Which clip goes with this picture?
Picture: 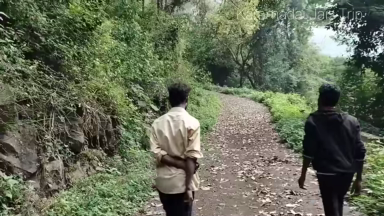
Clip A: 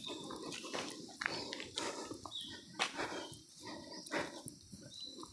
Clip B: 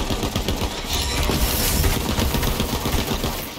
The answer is A